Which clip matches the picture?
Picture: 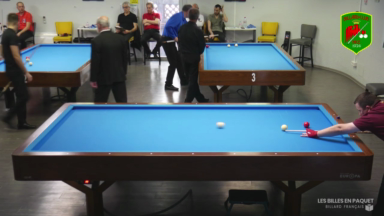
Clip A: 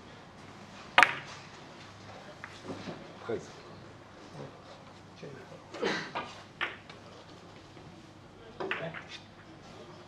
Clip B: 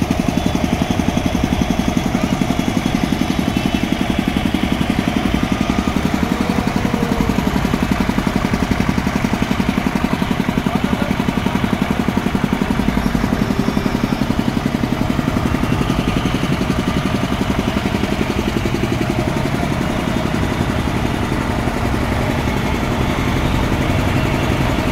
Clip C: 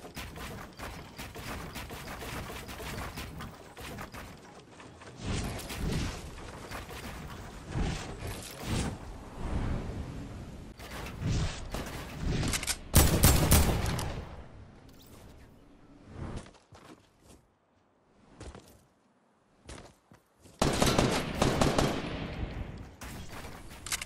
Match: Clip A